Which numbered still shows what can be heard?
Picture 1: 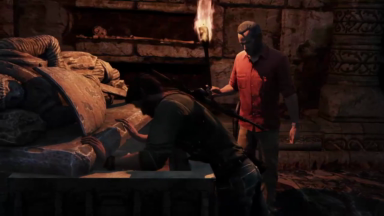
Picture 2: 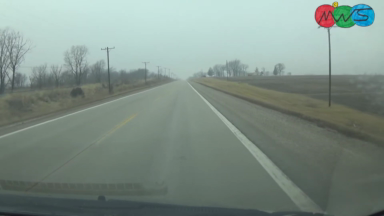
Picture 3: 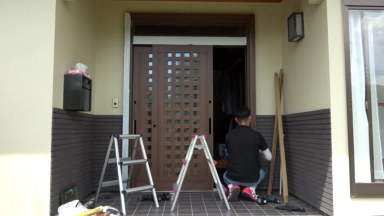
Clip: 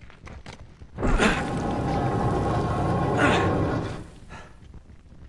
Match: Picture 1